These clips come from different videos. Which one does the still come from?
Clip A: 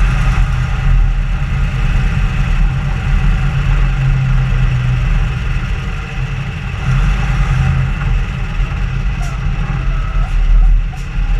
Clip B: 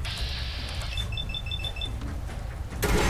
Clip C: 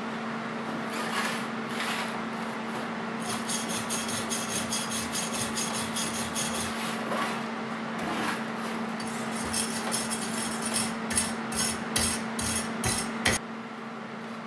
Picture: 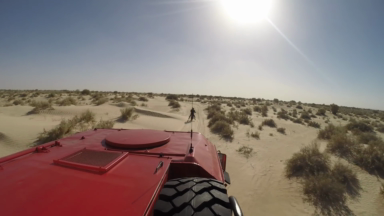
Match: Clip A